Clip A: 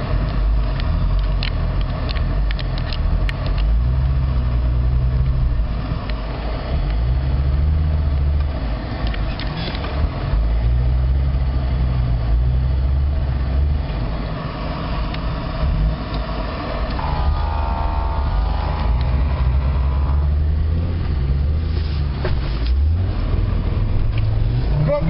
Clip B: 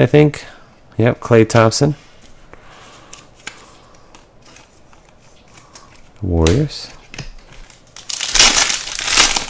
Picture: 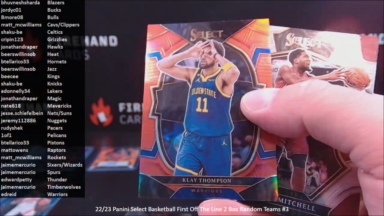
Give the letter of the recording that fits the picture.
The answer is B